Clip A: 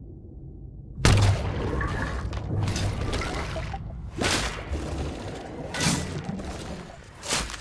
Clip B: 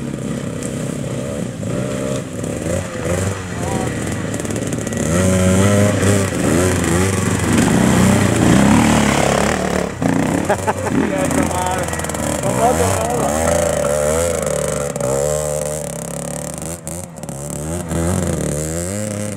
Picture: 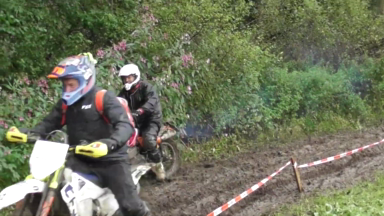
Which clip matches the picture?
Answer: B